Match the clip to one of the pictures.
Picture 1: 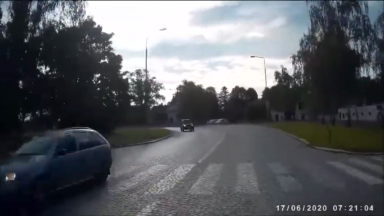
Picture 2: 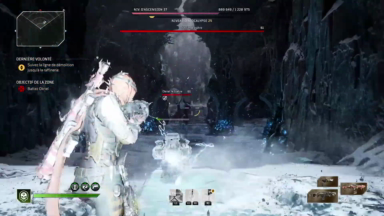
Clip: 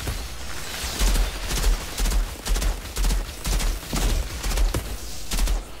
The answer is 2